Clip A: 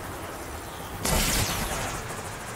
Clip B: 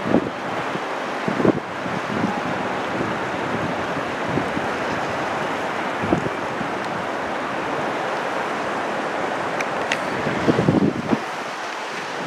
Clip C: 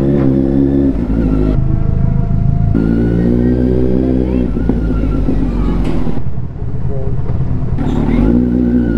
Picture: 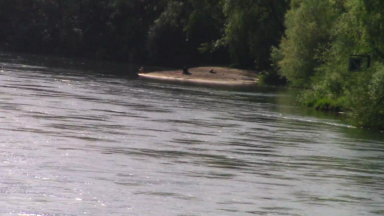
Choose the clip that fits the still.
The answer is B